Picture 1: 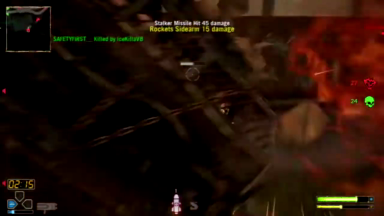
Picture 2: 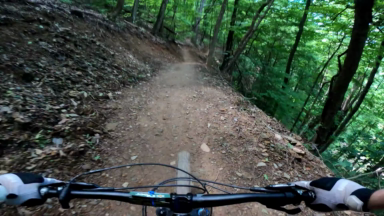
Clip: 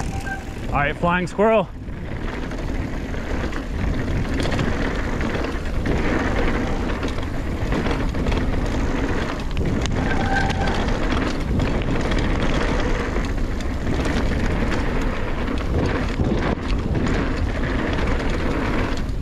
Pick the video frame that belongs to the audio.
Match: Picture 2